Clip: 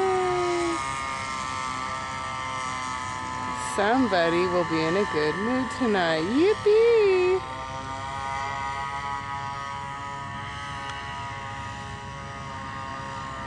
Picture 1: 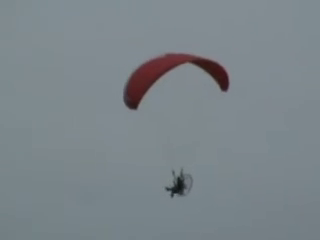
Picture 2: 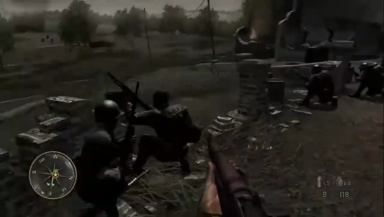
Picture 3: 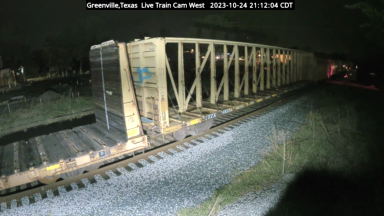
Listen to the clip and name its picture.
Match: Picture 1